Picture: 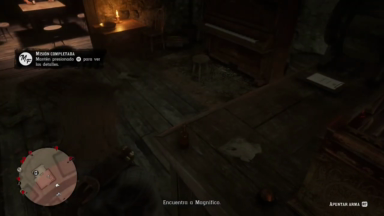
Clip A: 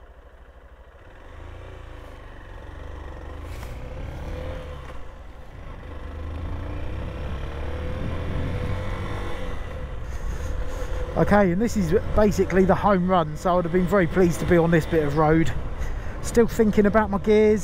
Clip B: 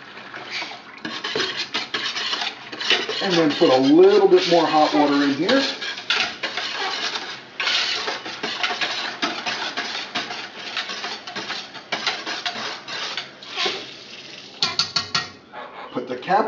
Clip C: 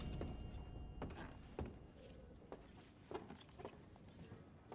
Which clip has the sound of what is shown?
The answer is C